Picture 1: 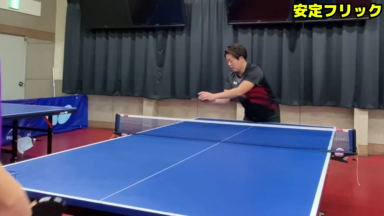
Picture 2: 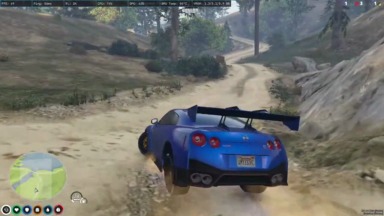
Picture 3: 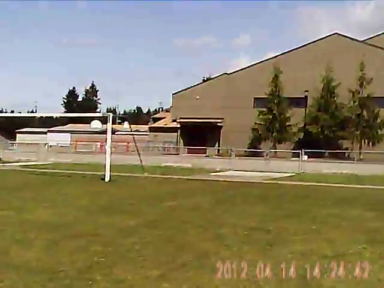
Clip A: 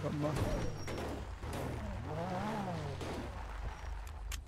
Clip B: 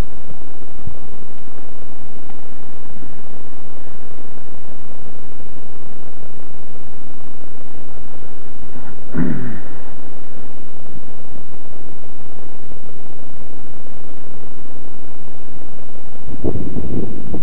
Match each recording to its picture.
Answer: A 2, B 3